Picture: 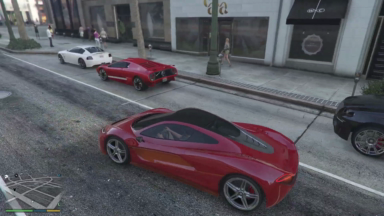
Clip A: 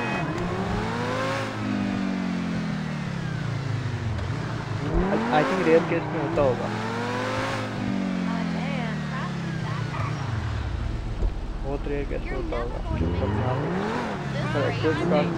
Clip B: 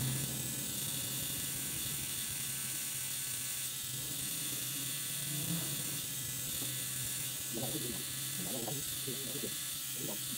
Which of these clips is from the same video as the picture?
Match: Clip A